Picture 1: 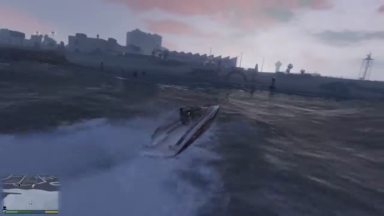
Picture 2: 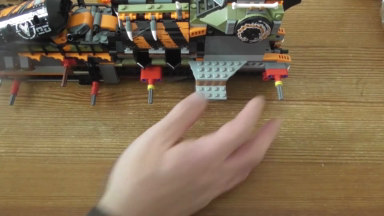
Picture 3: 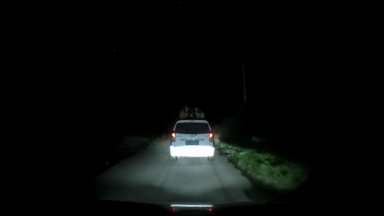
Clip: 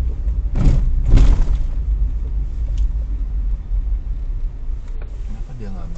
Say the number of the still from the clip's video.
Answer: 3